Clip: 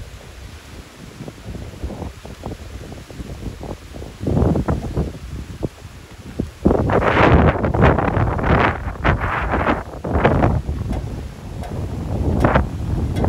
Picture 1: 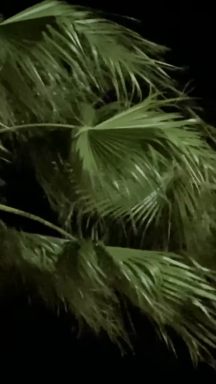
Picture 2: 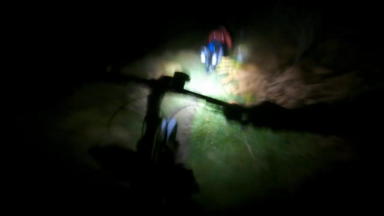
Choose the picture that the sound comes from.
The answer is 1